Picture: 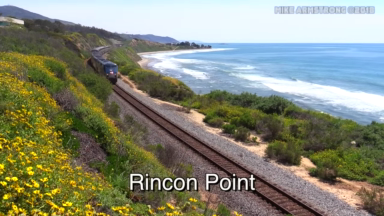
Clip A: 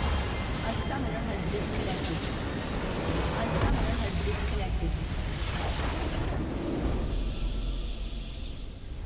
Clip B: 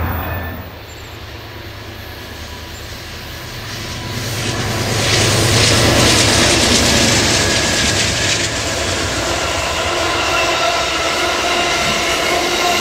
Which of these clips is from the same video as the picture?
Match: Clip B